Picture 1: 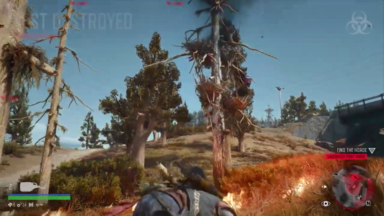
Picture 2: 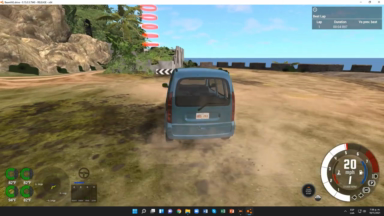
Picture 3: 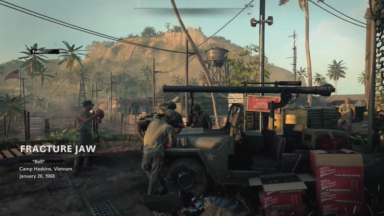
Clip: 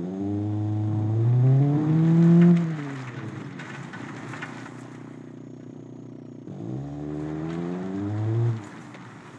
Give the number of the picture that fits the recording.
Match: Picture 2